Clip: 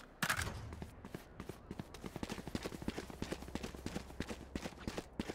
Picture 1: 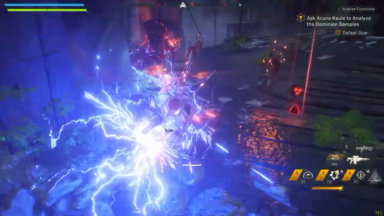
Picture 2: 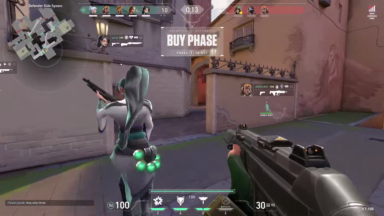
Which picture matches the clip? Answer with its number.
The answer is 2